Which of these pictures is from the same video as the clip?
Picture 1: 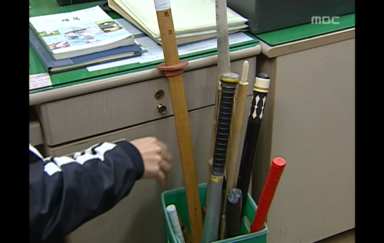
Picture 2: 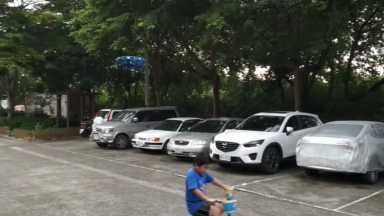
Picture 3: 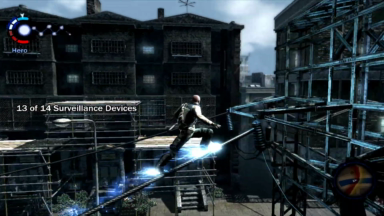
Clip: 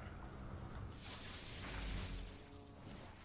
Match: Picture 3